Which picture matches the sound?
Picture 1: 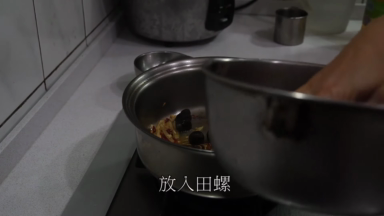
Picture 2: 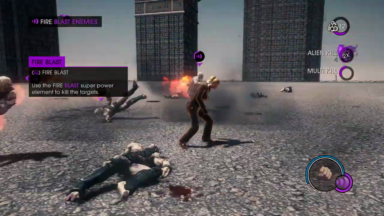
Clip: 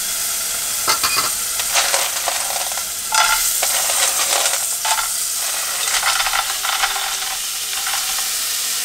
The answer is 1